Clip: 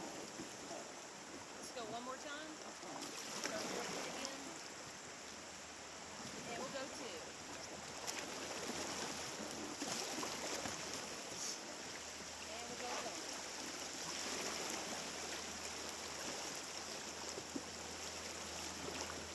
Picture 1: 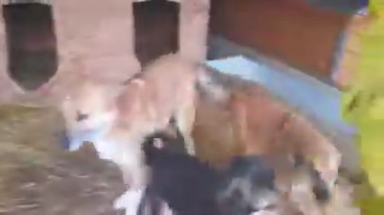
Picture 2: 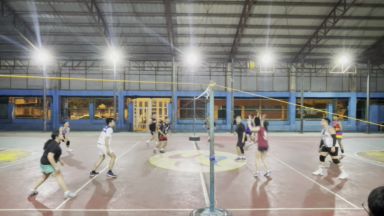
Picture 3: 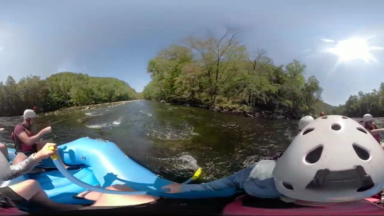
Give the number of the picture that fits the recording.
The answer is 3